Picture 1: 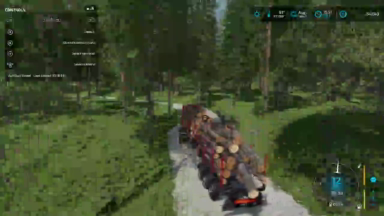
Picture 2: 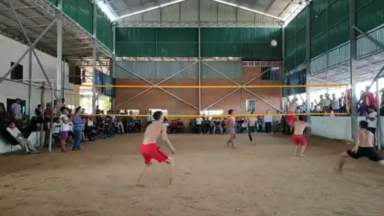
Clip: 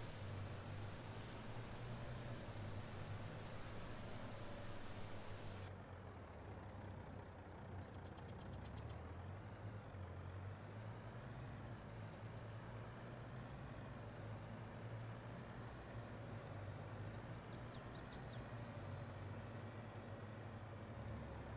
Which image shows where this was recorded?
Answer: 1